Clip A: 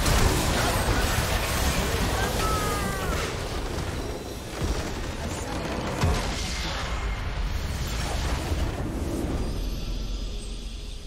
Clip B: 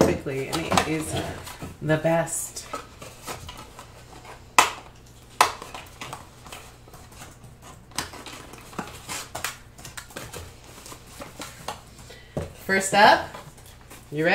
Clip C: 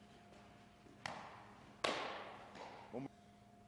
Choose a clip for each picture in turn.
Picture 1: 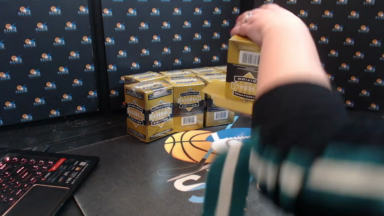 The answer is B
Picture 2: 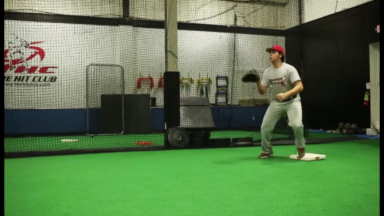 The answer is C